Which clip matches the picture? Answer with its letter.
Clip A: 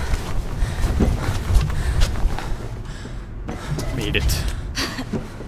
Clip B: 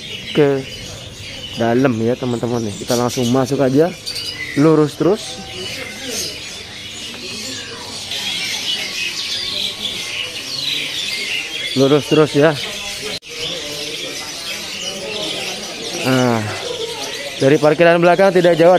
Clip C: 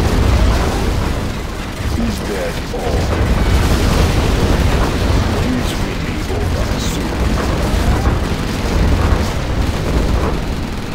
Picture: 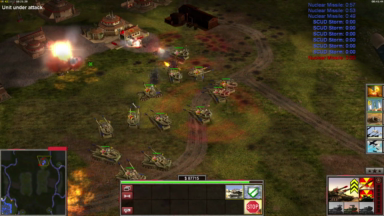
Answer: C